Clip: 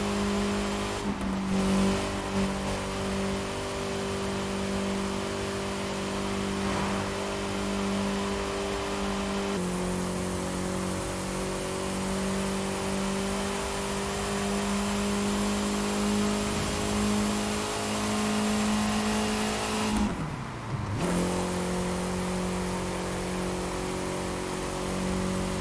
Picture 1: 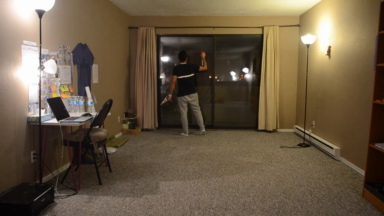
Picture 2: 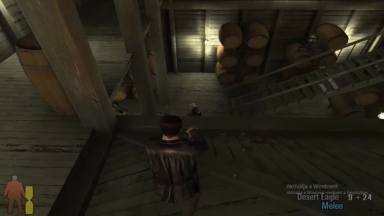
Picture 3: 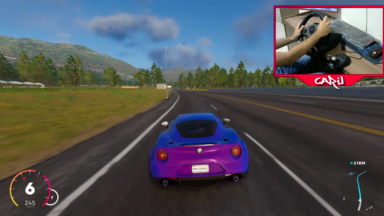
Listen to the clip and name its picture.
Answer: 3